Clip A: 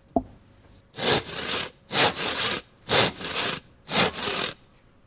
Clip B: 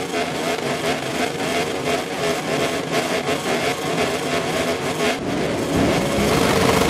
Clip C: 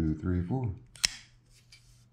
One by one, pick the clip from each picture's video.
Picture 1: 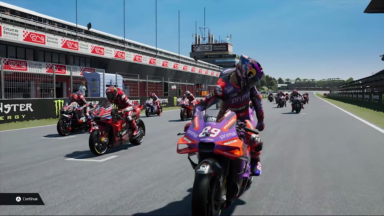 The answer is B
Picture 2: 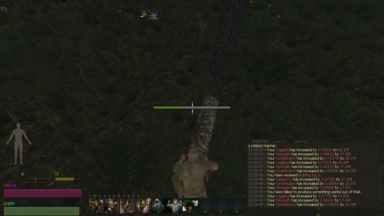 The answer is A